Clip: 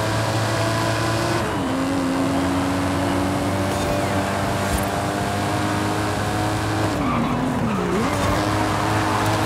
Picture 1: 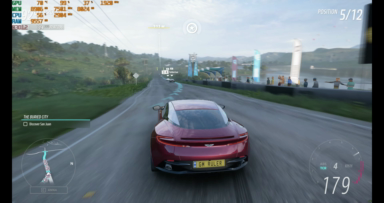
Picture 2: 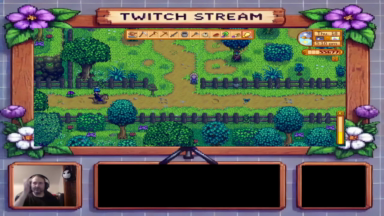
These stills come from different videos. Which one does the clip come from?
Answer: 1